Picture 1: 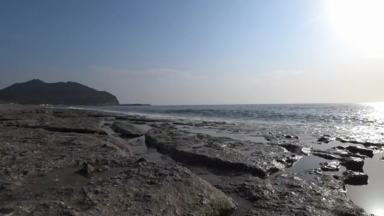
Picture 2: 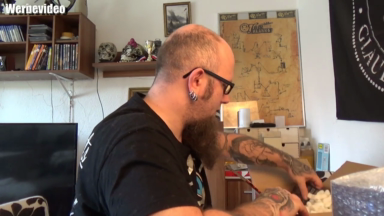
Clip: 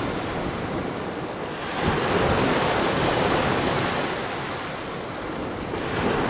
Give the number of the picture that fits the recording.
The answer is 1